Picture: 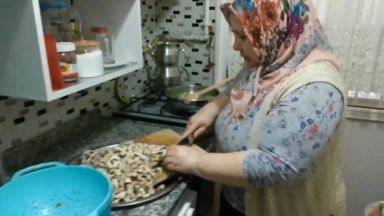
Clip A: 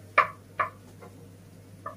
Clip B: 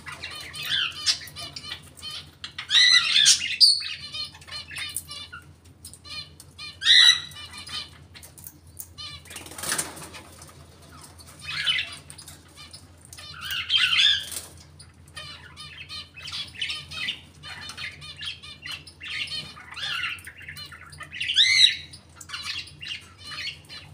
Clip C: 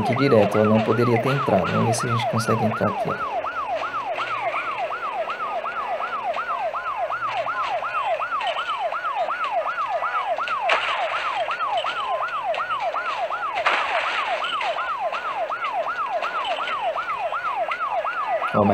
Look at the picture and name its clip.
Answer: A